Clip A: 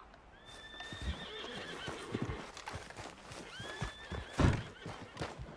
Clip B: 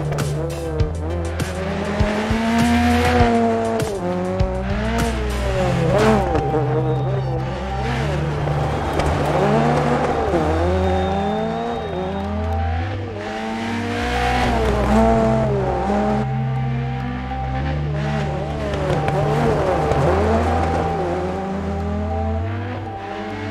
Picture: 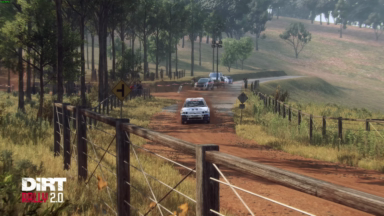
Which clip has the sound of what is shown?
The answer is B